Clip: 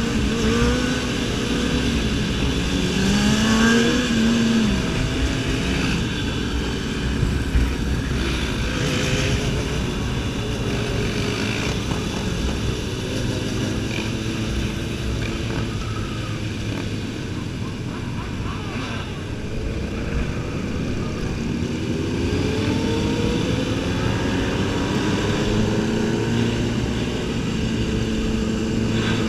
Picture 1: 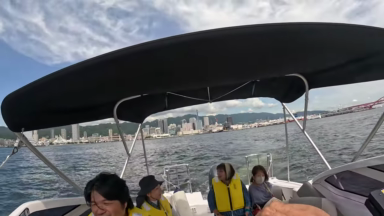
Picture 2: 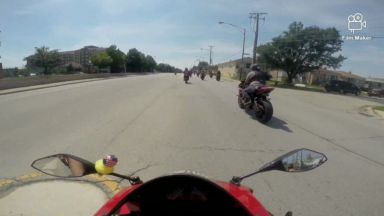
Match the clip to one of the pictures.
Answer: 2